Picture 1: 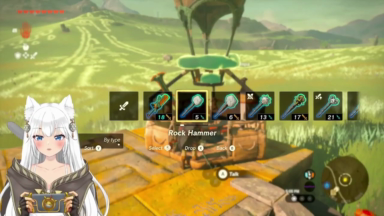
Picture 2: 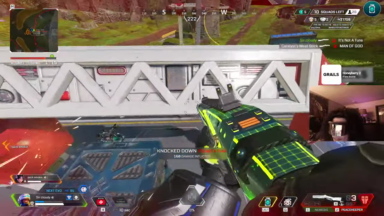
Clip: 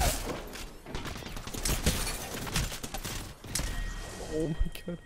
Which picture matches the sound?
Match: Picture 2